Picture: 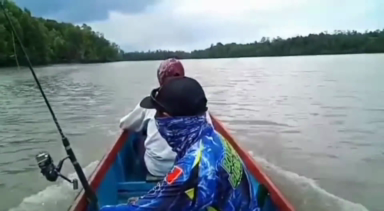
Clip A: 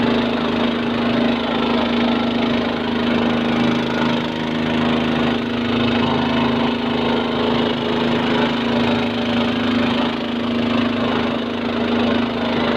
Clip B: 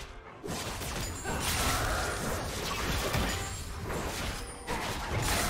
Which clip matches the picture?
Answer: A